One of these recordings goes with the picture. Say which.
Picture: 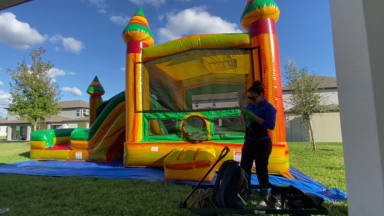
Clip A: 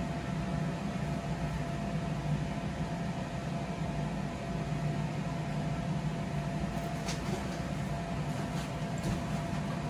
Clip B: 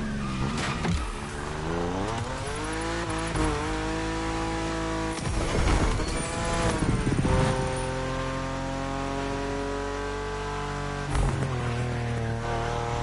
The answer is A